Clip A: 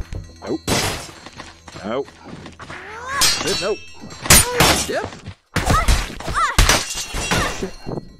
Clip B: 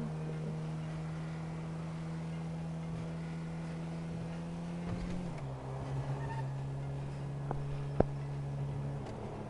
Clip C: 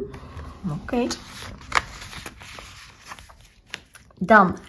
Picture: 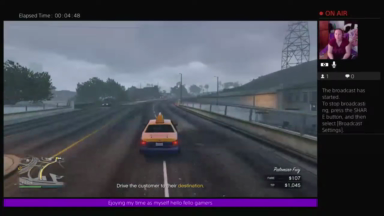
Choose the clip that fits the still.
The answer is B